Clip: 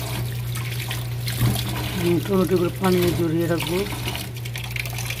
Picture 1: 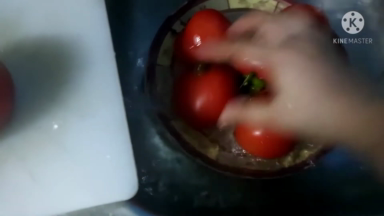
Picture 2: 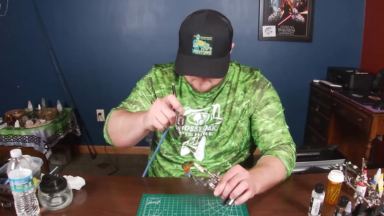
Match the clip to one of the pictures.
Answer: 1